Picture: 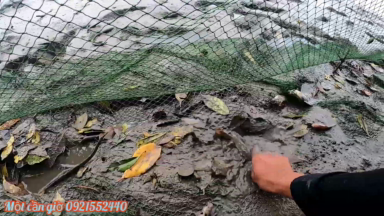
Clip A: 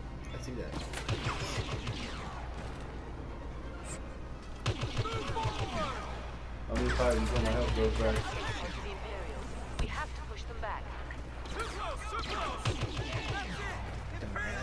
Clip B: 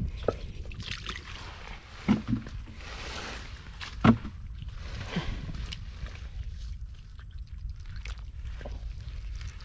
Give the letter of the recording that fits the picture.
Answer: B